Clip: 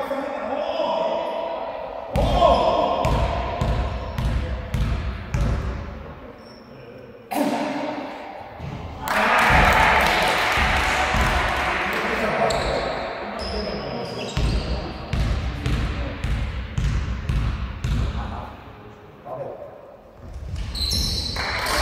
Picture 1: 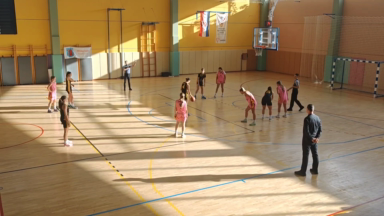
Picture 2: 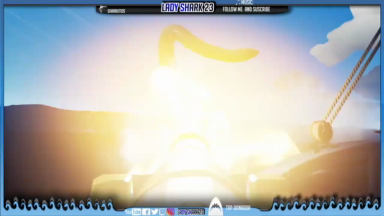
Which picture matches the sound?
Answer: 1